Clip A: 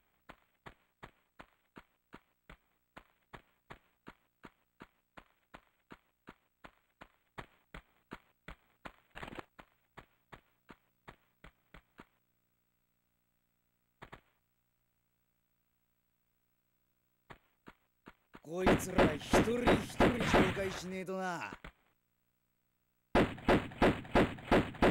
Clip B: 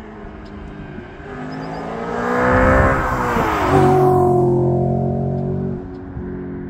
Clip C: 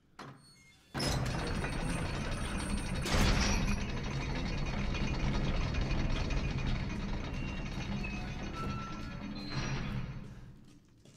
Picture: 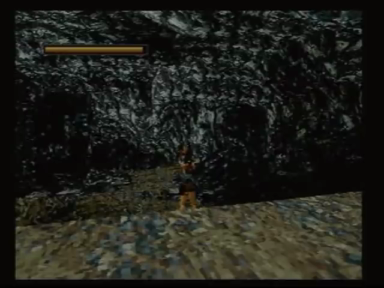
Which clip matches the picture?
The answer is A